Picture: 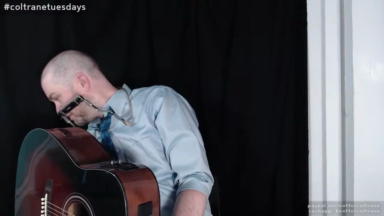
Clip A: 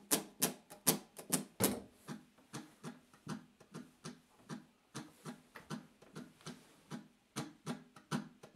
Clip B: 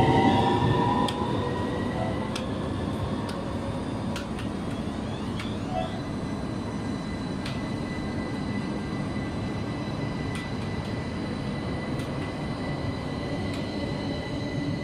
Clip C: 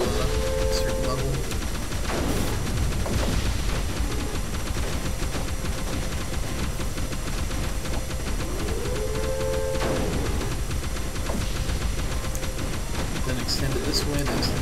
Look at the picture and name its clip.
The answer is A